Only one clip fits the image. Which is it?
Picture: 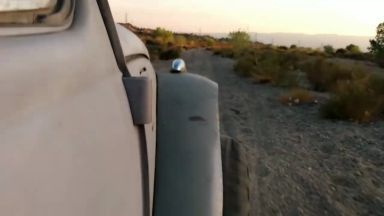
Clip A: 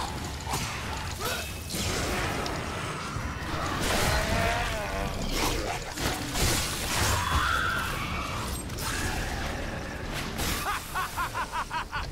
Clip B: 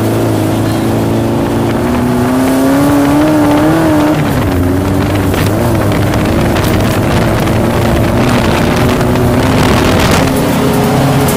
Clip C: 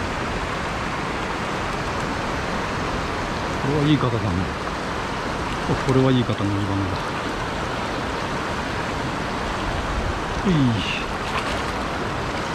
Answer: B